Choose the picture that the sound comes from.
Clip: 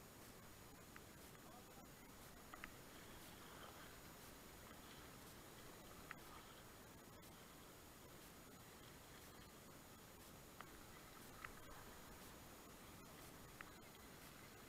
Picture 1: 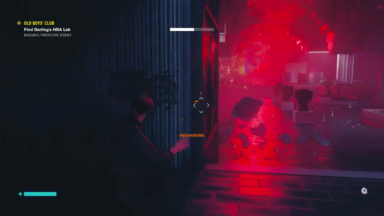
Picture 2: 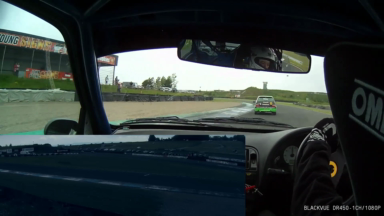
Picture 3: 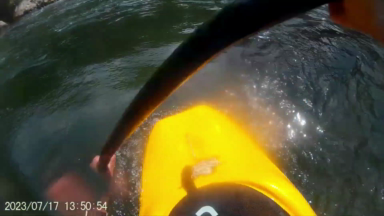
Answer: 3